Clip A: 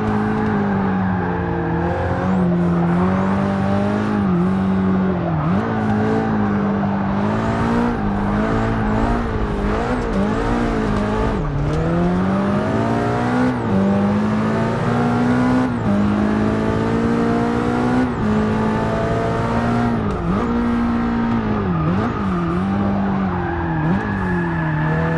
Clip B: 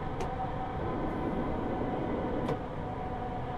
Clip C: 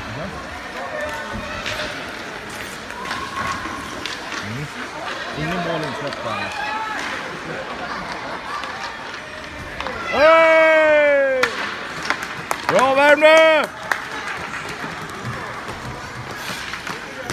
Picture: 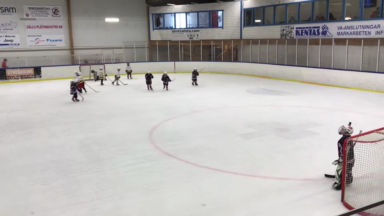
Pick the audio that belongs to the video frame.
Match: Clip C